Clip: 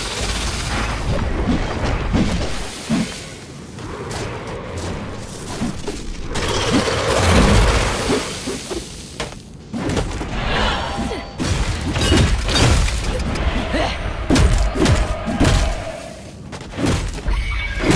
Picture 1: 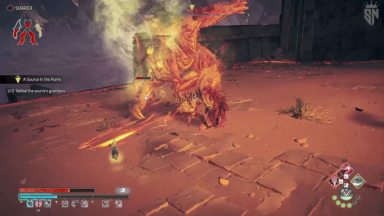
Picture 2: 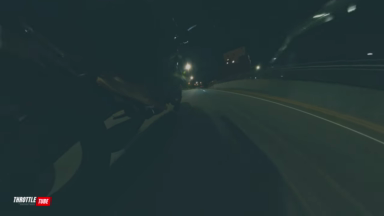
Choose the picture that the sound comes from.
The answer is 1